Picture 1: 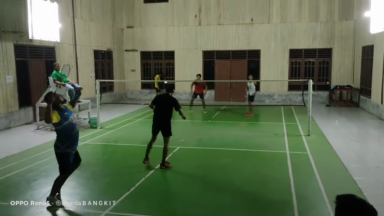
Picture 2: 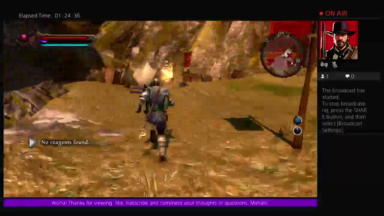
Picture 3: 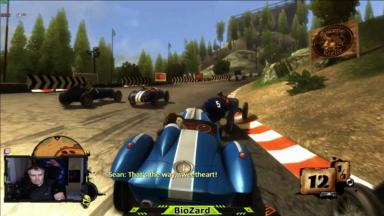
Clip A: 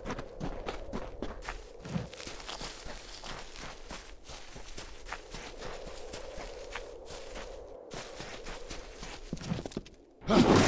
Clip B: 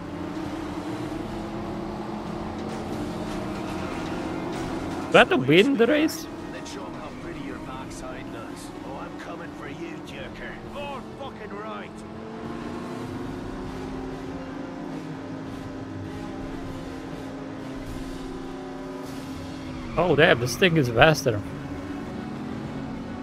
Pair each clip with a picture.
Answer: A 2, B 3